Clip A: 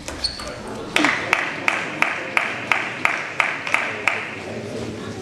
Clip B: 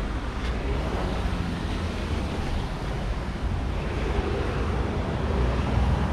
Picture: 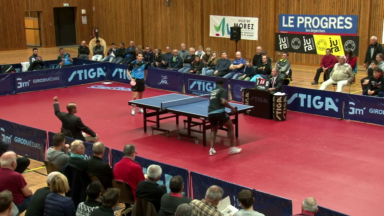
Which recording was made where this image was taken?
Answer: A